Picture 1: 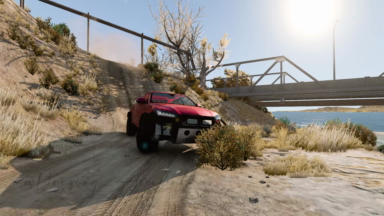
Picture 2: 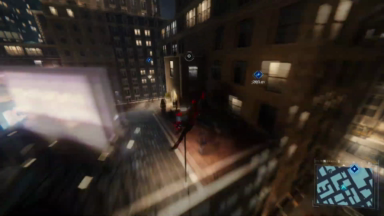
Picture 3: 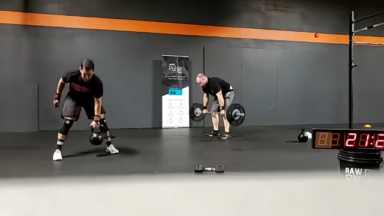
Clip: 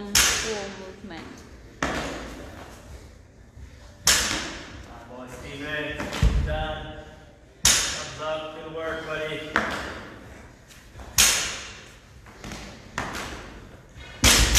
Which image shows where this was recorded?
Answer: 3